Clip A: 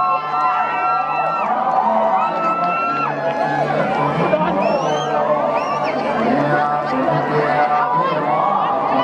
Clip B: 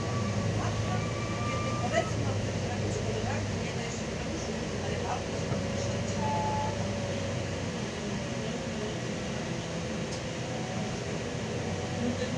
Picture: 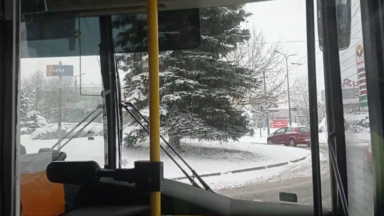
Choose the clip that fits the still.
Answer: B